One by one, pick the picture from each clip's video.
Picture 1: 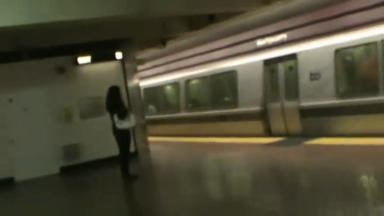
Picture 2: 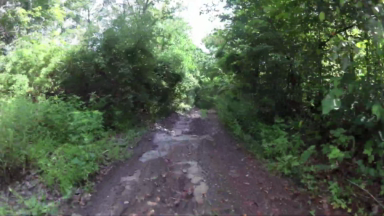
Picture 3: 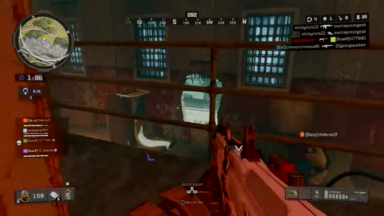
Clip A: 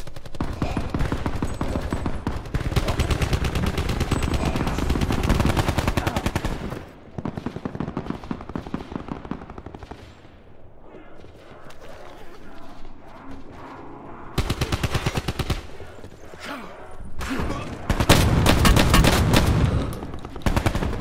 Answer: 3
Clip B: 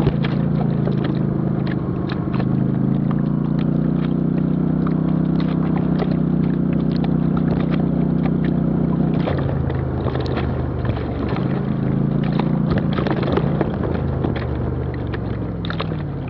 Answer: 2